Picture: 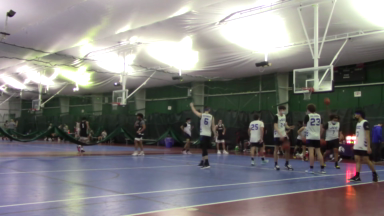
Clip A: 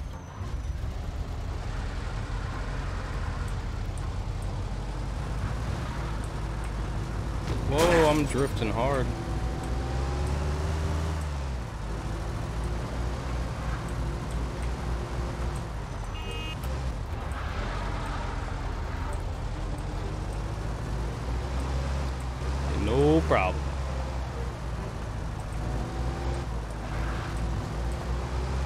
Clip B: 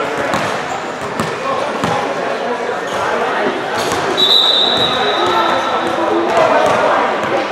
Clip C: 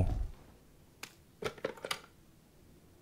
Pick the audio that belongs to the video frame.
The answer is B